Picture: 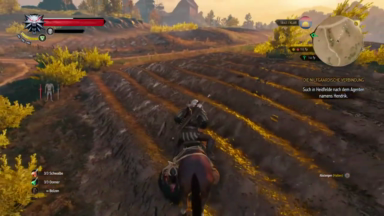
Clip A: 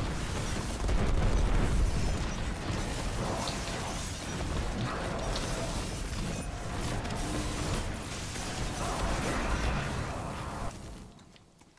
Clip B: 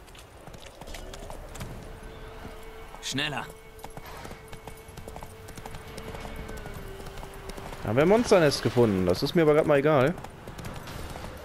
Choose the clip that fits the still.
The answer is B